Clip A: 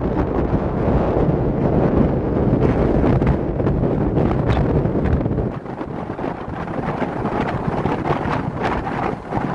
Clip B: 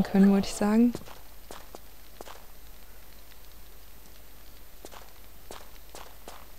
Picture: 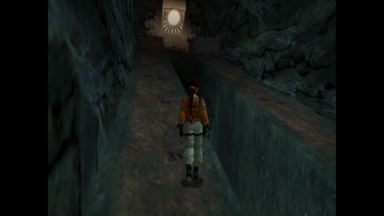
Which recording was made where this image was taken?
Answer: B